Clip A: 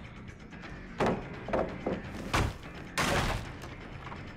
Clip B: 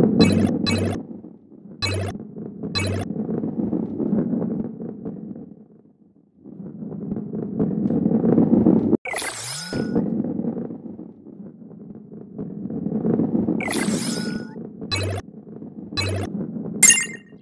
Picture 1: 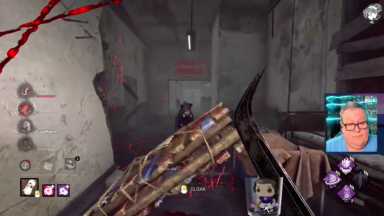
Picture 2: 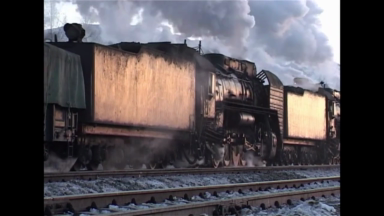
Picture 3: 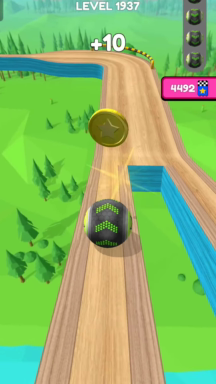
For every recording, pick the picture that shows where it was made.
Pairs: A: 1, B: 3